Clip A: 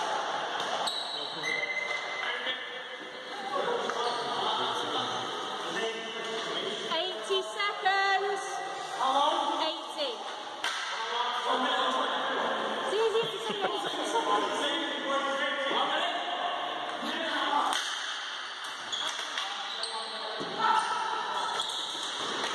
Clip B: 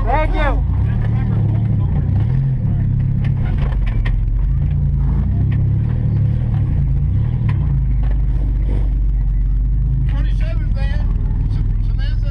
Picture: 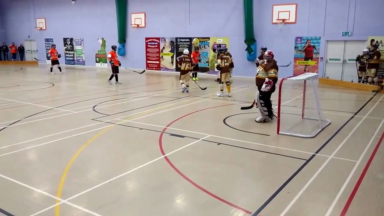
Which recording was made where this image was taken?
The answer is A